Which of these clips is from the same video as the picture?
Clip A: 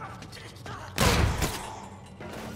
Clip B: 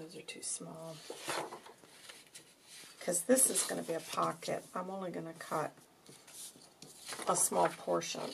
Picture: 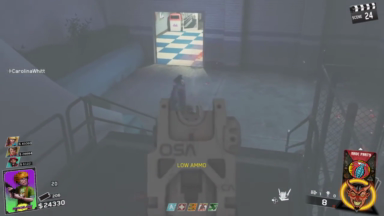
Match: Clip A